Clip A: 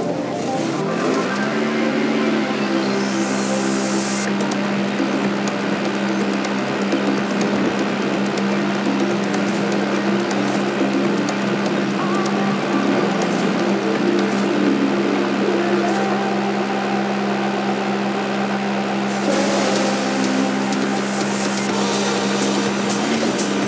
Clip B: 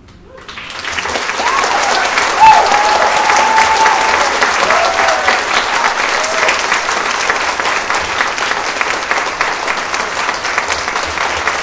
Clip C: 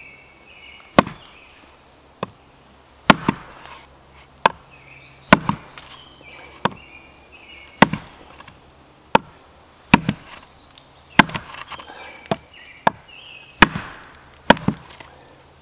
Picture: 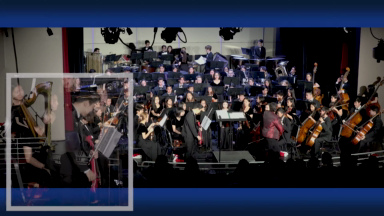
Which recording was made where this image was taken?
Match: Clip B